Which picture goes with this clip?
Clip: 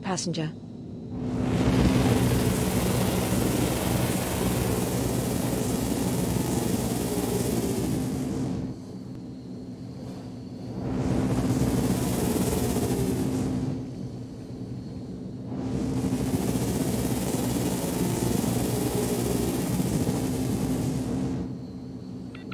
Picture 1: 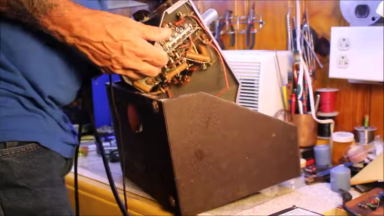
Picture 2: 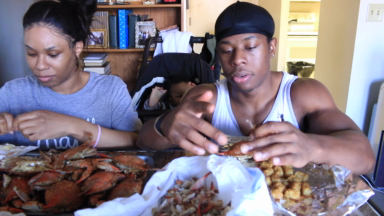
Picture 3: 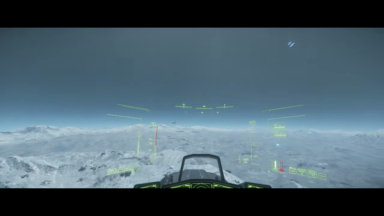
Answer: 3